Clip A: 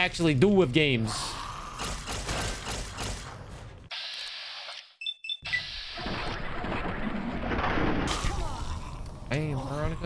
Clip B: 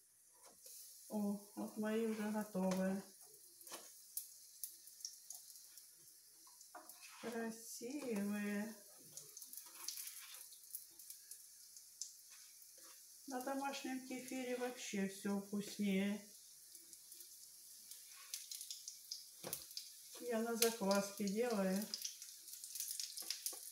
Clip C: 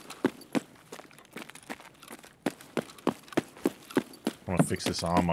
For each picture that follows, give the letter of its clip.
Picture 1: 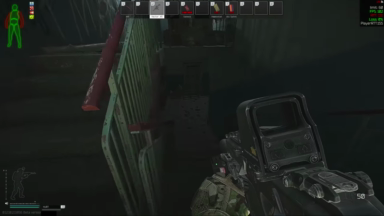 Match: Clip C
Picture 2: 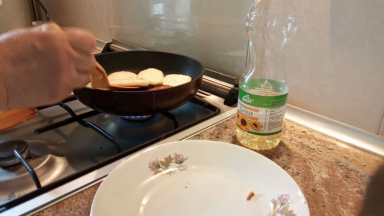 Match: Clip B